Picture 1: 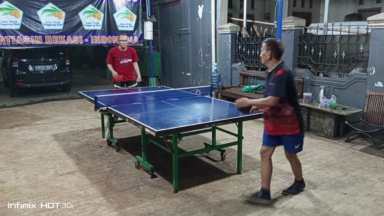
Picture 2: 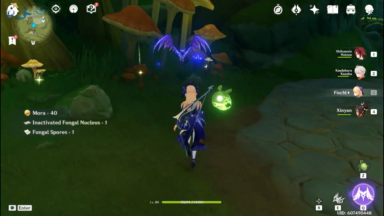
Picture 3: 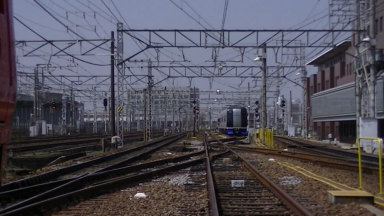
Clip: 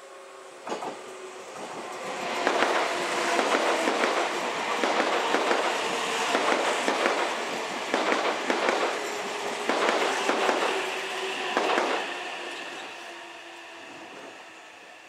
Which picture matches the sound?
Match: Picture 3